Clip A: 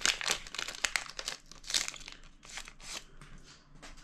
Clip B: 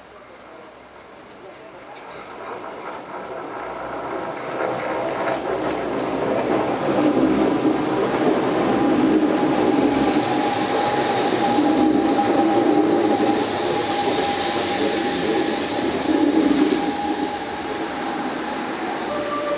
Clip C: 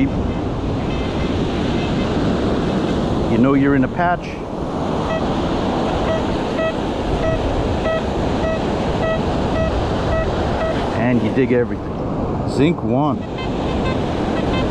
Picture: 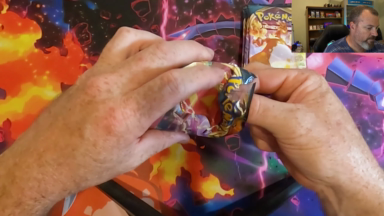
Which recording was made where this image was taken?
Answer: A